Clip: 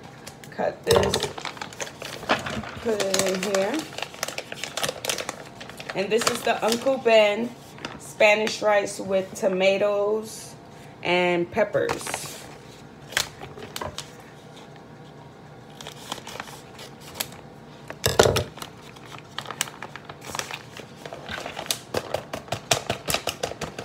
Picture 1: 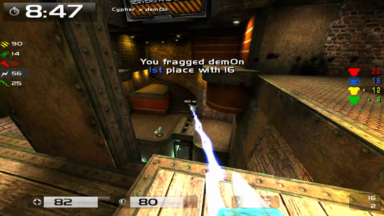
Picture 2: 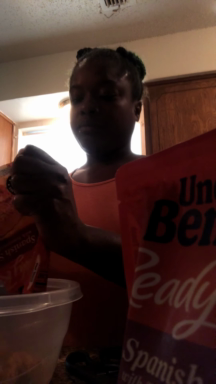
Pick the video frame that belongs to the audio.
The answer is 2